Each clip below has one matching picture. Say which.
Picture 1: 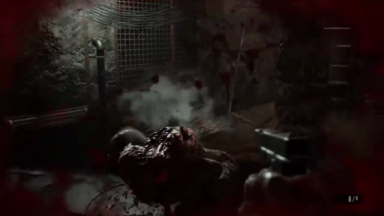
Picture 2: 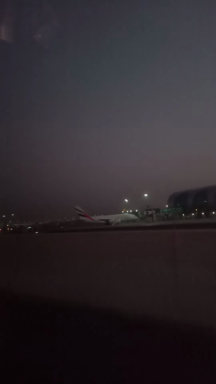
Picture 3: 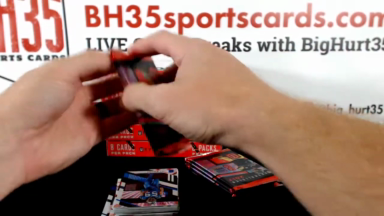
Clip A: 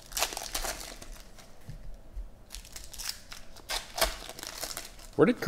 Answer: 3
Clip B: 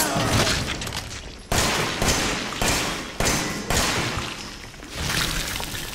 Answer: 1